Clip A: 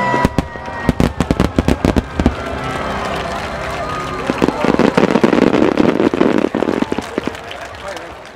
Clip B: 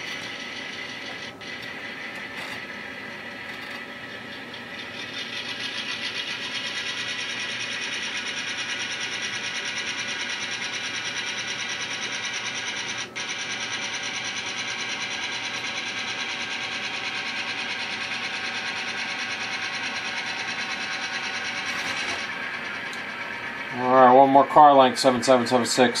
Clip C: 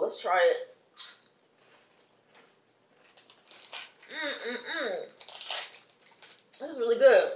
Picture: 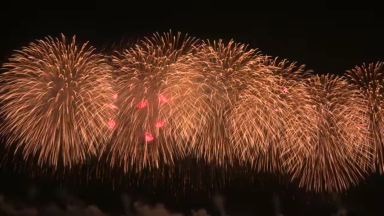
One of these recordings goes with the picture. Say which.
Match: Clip A